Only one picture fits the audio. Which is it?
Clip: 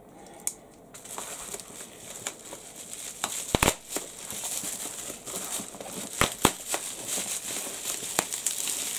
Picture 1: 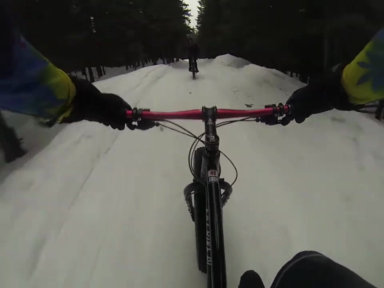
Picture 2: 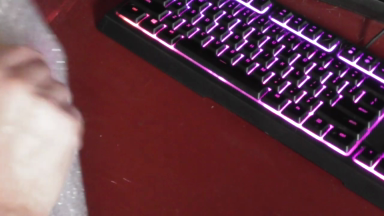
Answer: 2